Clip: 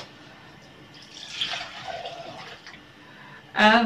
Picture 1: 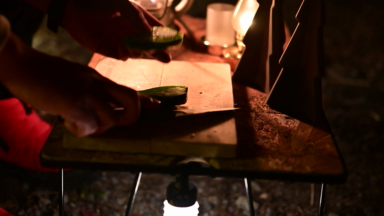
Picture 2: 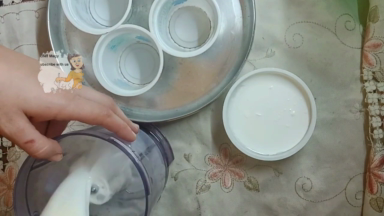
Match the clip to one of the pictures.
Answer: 2